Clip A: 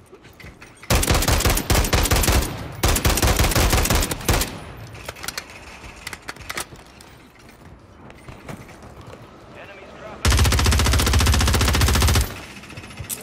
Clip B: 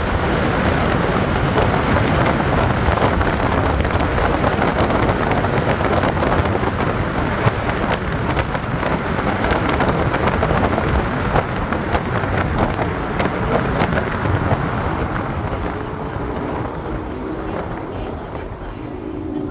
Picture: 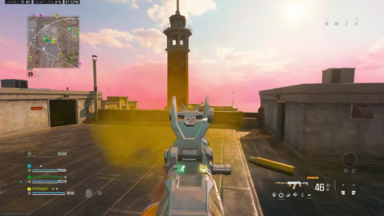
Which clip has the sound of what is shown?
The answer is A